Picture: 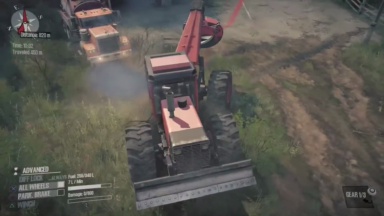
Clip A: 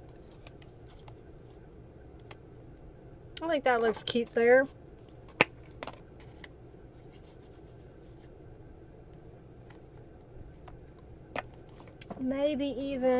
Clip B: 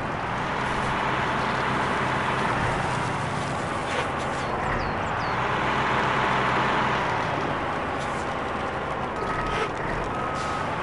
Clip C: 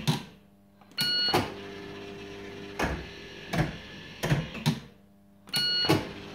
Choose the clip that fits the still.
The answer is B